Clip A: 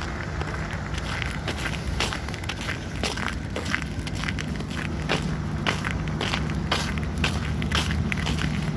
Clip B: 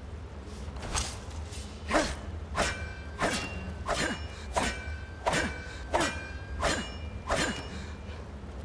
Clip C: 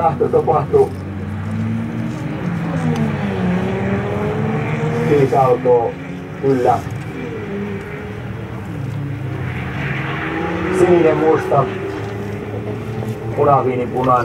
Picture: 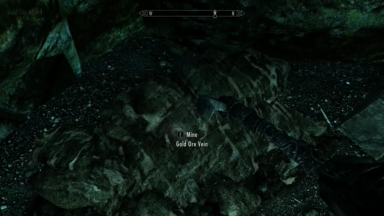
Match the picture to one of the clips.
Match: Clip B